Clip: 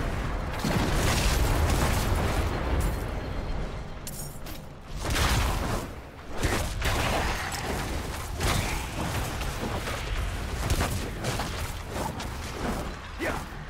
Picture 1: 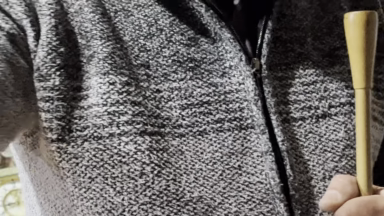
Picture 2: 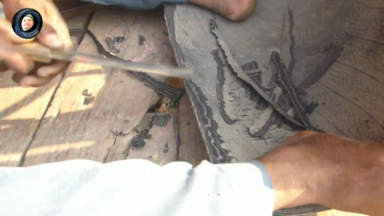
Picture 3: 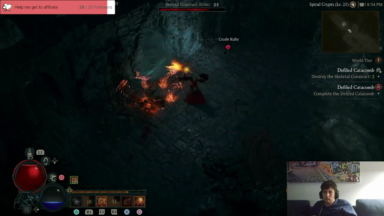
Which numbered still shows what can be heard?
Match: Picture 3